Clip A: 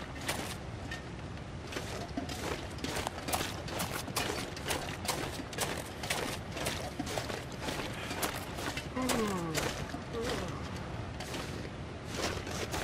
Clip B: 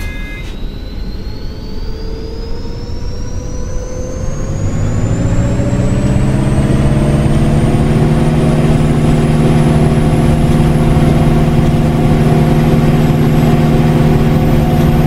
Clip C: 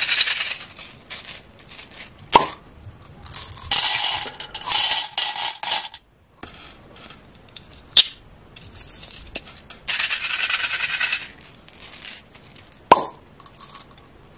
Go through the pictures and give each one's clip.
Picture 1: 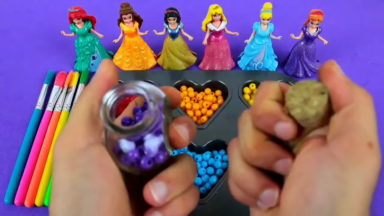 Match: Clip C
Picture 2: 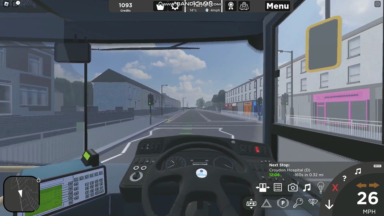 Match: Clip B